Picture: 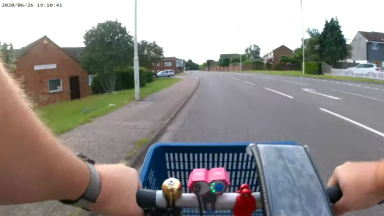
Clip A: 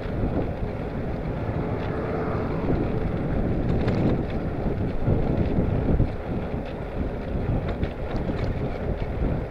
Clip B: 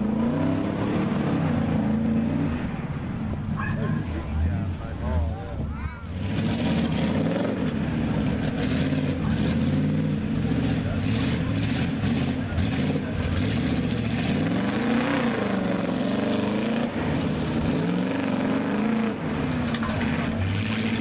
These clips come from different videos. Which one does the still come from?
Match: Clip A